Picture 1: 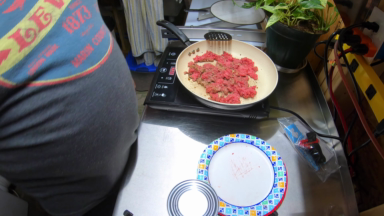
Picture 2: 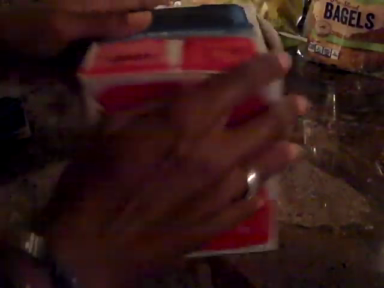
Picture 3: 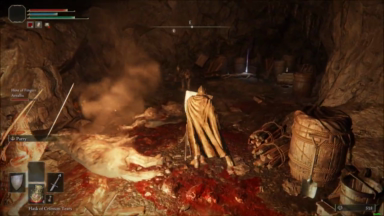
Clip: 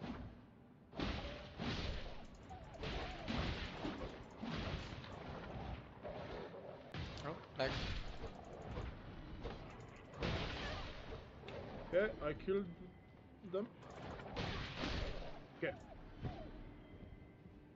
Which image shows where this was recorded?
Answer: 3